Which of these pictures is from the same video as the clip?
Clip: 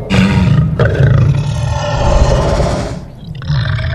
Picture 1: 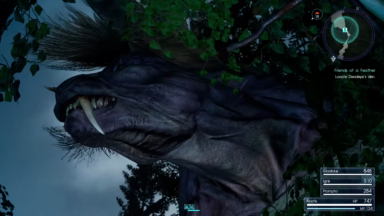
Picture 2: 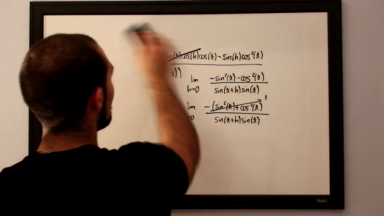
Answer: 1